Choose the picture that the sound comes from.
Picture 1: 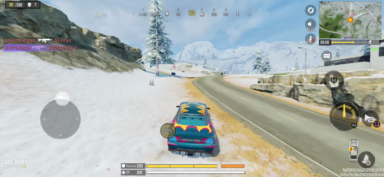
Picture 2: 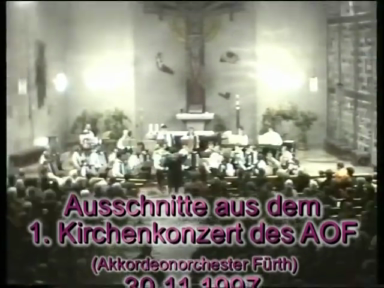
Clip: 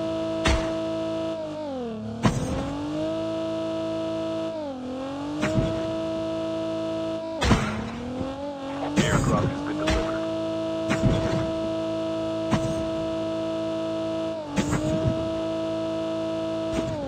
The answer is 1